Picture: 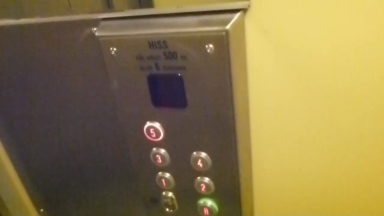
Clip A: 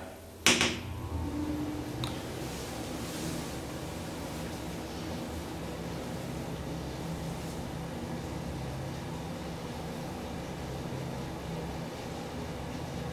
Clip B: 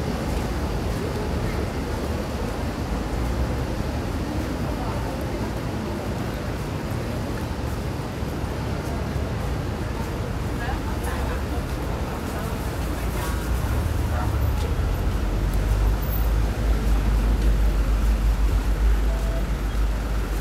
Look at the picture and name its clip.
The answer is A